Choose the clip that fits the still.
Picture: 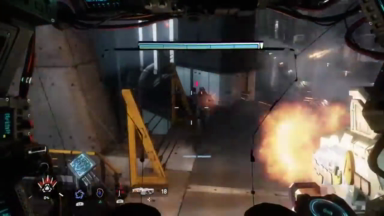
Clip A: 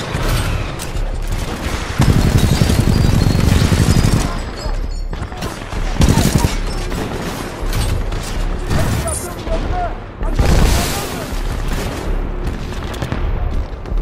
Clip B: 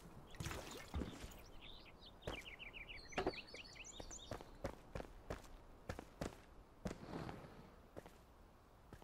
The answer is A